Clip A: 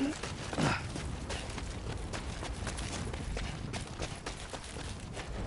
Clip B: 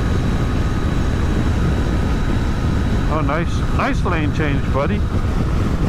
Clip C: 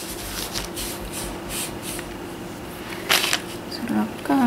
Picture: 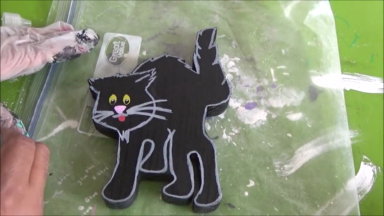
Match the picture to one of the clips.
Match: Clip C